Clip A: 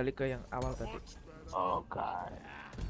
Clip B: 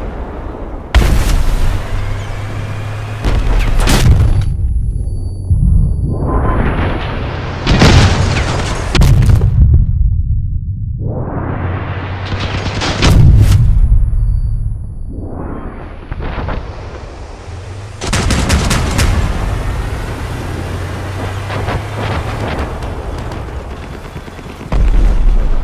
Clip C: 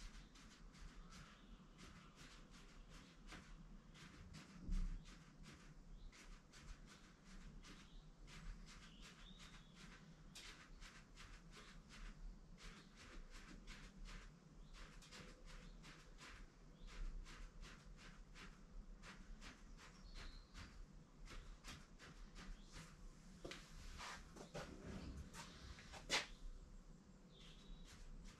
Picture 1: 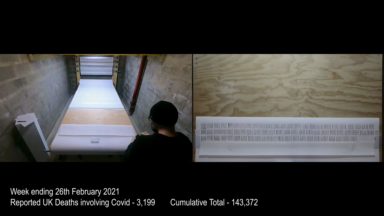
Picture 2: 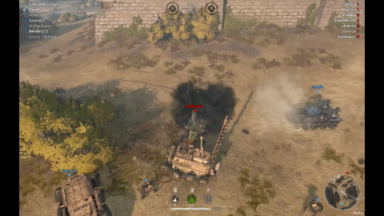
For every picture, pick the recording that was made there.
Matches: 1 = C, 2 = B